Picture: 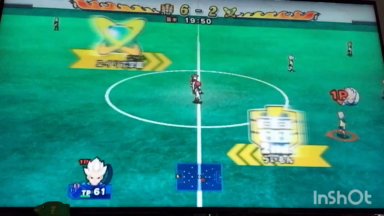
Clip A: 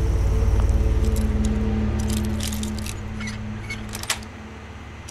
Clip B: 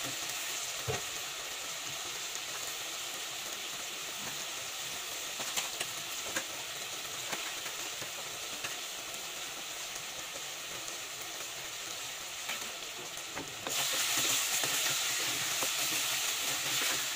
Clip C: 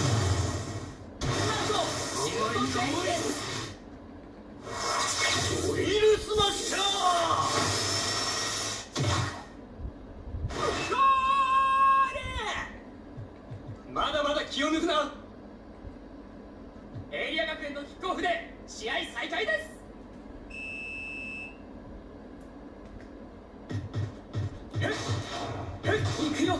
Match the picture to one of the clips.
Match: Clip C